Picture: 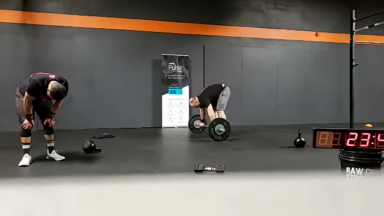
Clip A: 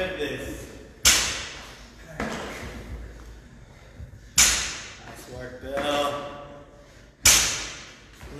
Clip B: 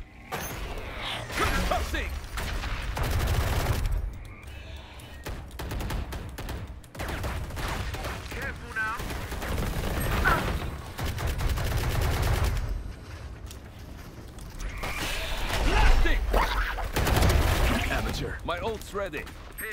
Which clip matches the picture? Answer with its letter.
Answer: A